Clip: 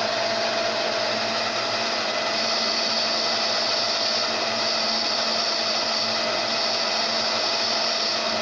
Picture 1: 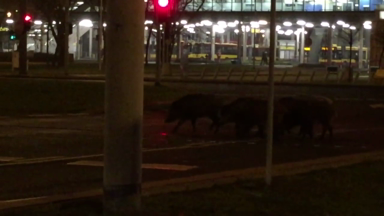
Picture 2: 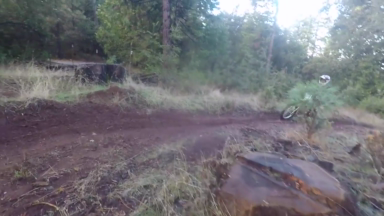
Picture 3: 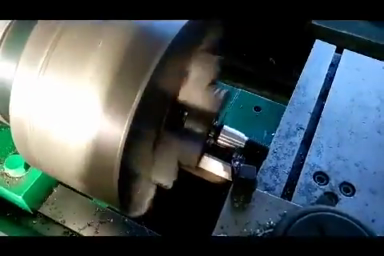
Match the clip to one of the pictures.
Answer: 3